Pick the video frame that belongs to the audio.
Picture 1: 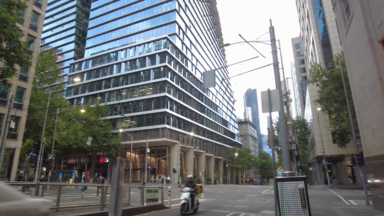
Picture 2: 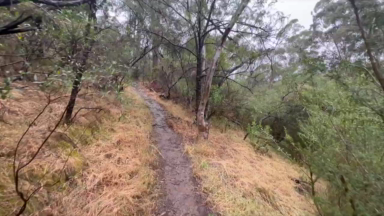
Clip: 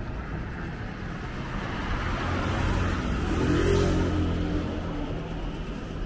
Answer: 1